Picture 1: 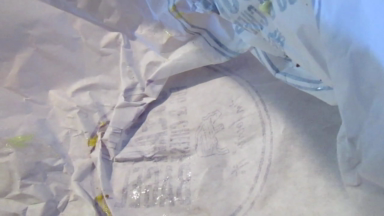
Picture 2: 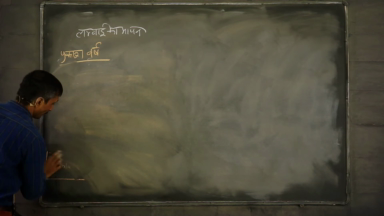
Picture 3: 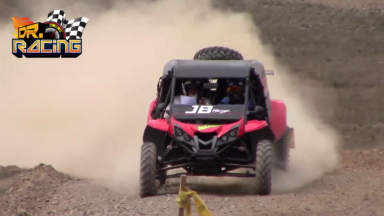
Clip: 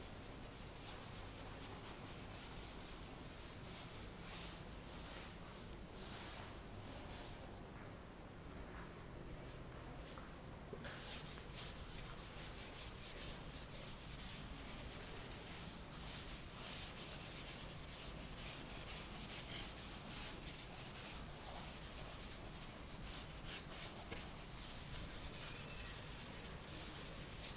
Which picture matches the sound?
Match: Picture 2